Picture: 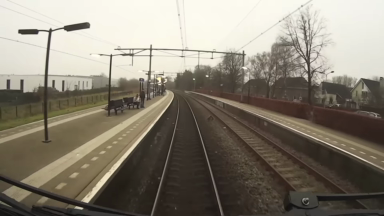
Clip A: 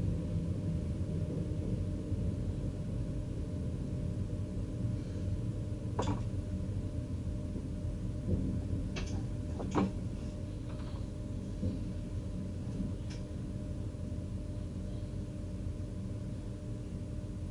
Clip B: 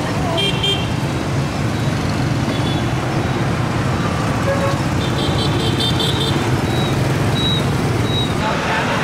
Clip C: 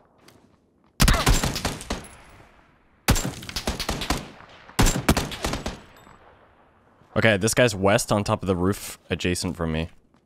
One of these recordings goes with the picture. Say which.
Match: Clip A